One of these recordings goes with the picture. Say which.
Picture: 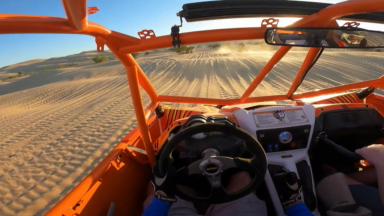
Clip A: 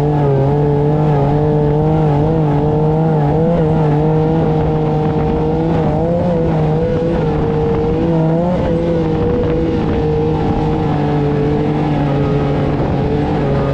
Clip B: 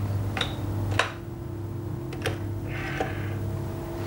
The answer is A